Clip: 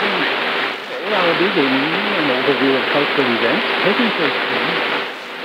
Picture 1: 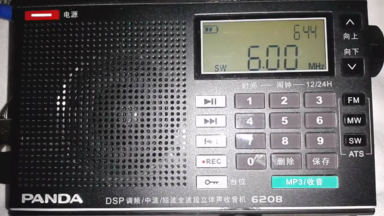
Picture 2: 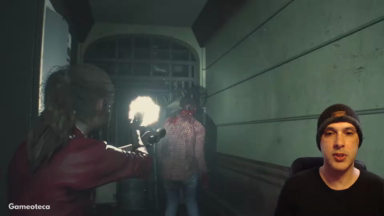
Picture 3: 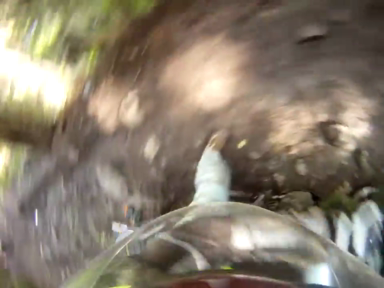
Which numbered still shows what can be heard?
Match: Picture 1